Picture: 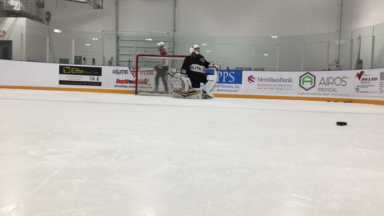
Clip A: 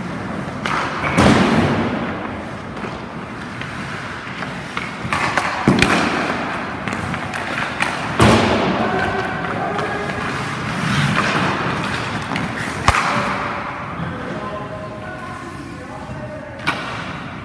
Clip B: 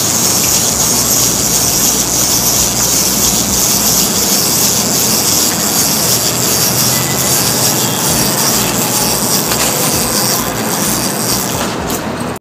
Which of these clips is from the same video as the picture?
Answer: A